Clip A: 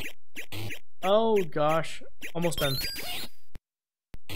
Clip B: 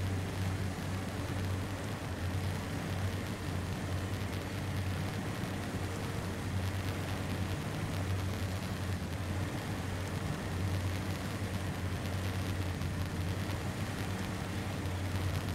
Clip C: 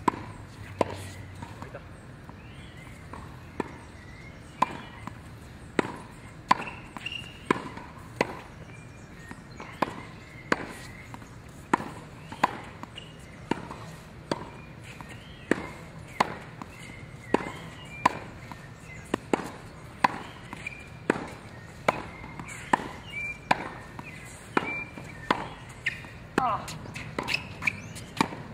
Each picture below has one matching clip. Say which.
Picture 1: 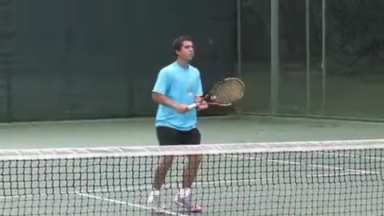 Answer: C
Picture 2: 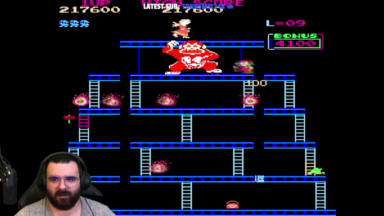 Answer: A